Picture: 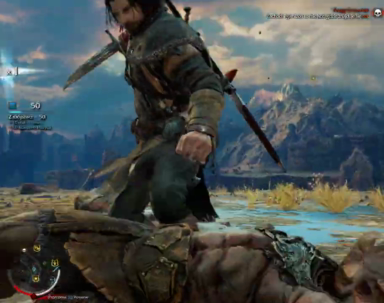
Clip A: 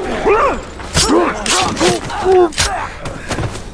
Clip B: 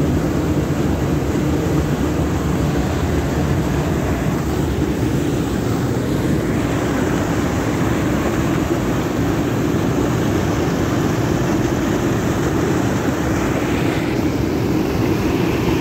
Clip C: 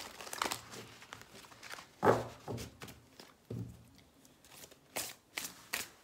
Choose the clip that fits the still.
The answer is A